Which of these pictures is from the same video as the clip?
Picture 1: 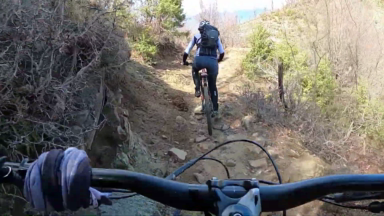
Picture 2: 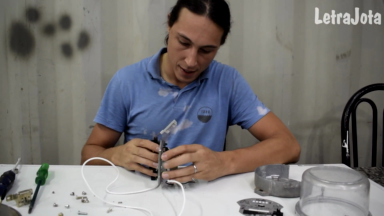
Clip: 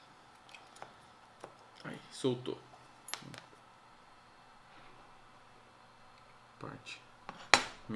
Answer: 2